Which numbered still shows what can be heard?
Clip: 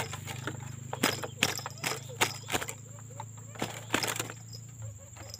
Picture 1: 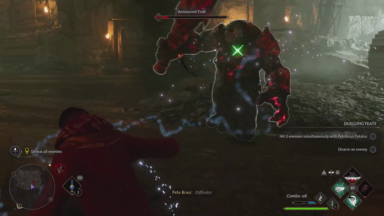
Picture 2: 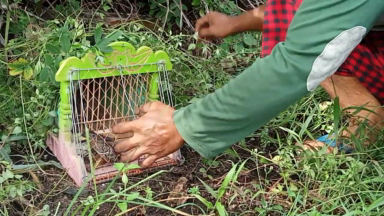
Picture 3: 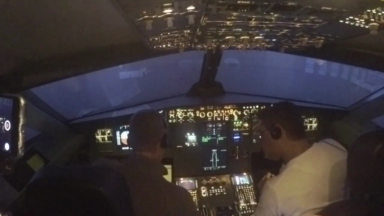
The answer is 2